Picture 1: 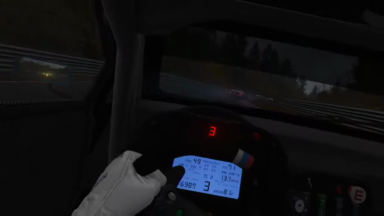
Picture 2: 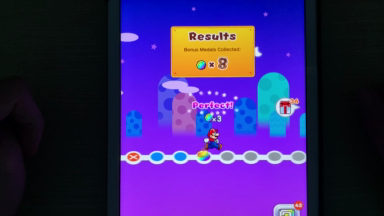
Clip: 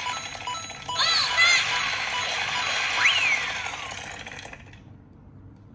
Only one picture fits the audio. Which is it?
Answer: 2